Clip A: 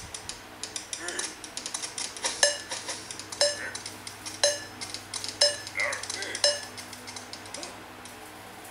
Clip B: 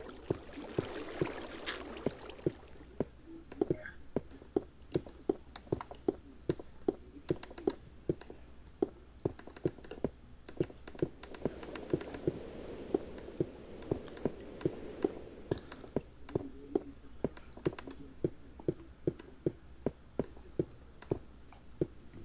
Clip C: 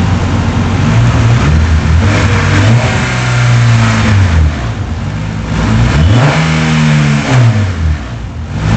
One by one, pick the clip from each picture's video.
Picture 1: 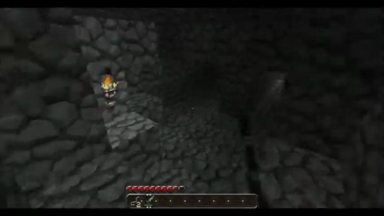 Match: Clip B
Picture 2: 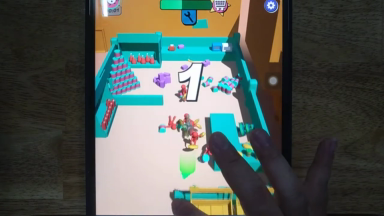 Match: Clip A